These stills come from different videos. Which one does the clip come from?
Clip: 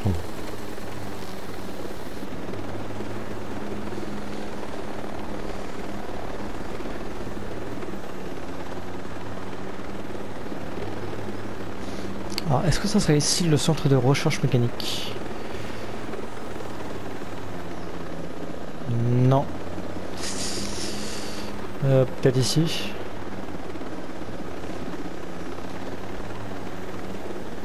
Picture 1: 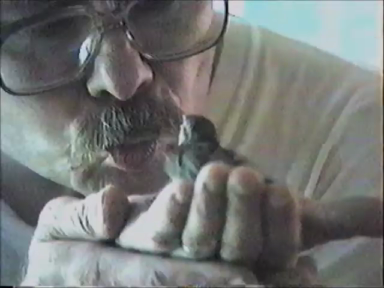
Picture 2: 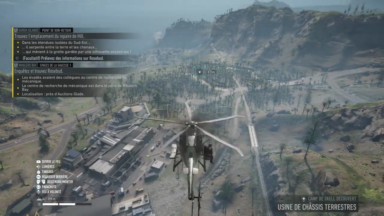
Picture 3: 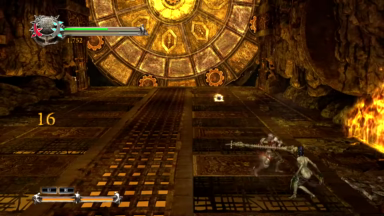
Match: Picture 2